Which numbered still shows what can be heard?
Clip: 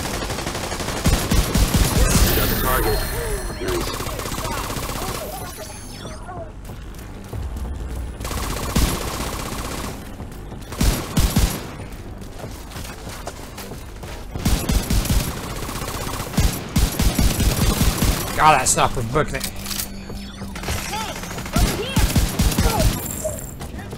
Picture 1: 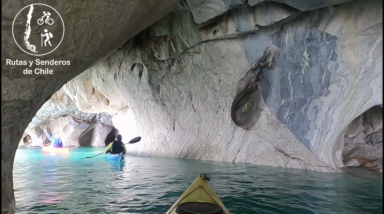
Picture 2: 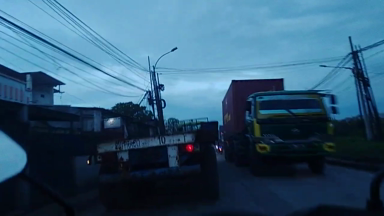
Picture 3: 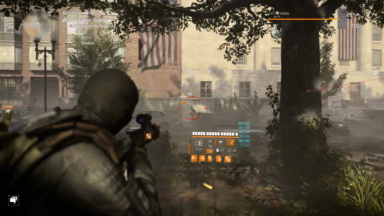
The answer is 3